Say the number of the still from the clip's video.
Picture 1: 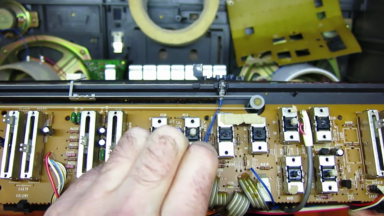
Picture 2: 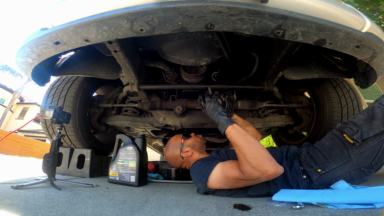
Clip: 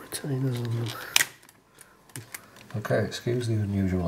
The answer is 1